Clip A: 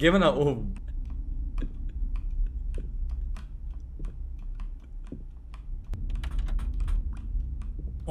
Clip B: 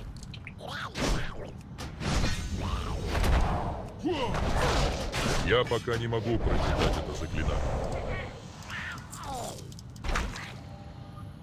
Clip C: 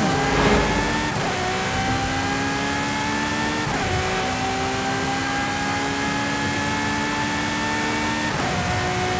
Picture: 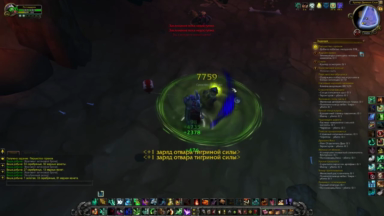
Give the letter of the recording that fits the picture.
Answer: B